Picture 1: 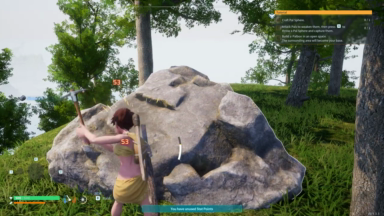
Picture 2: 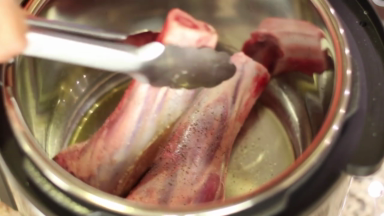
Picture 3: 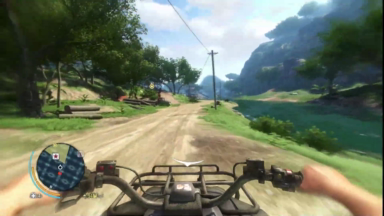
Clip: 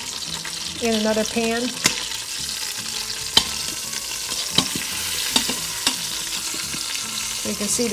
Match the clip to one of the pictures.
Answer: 2